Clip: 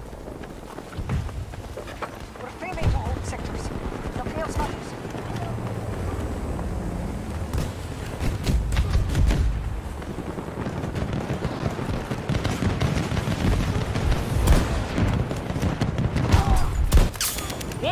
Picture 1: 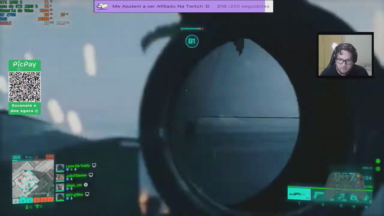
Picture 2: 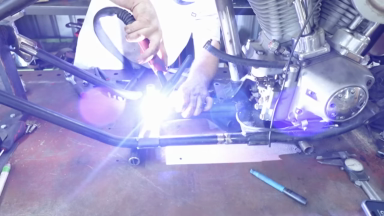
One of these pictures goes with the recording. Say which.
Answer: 1